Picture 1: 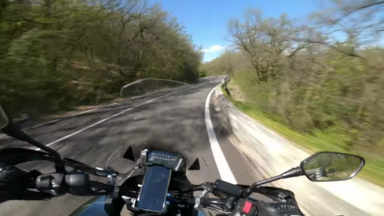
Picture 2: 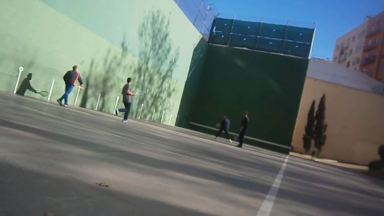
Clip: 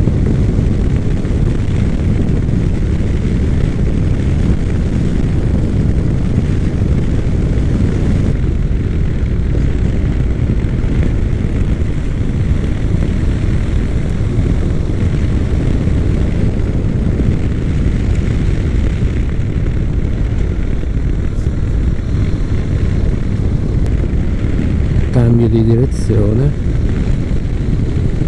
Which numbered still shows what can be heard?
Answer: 1